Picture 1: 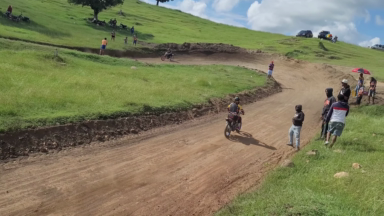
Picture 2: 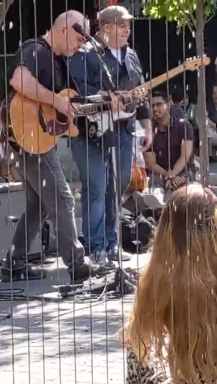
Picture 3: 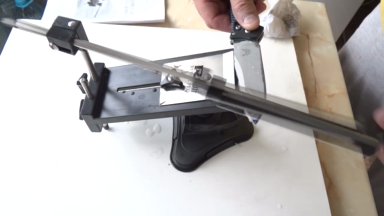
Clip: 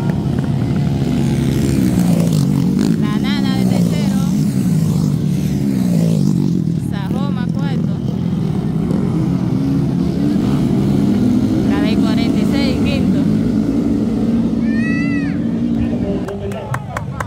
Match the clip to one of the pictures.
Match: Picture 1